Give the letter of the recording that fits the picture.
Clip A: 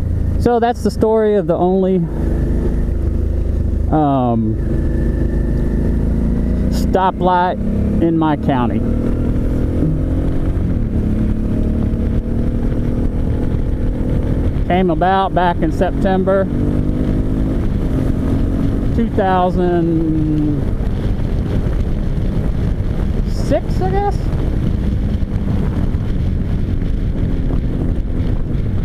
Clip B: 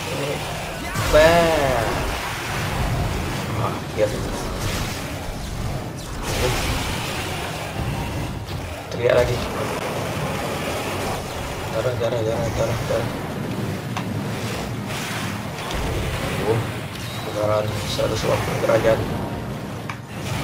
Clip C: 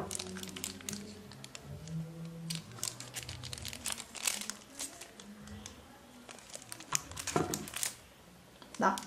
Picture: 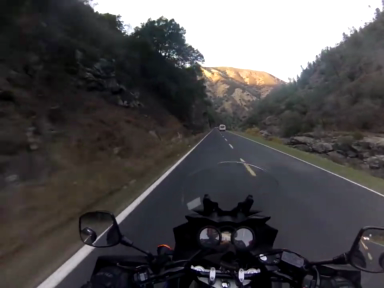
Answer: A